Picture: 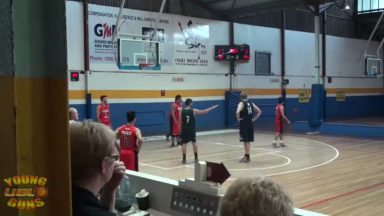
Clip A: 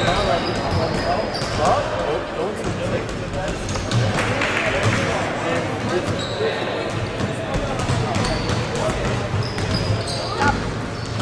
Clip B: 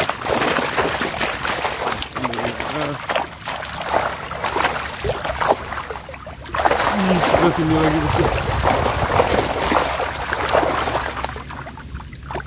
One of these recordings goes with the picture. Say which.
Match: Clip A